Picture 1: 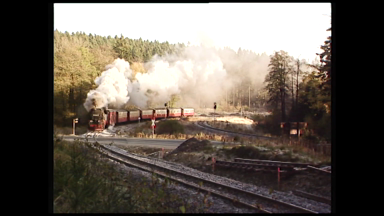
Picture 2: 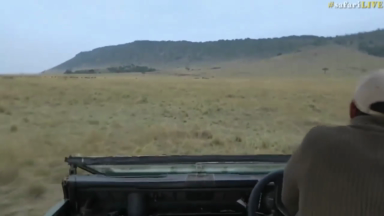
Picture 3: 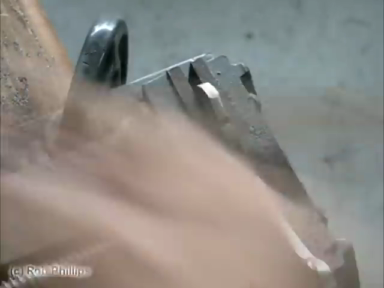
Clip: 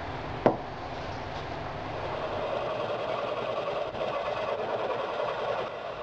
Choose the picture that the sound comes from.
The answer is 3